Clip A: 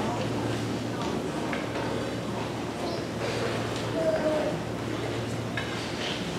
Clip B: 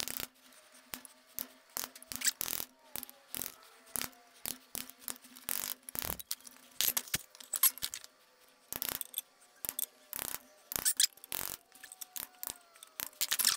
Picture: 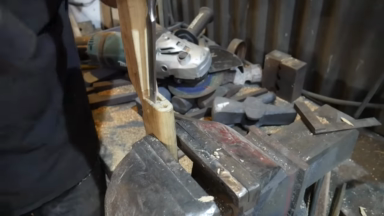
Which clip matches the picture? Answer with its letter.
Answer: B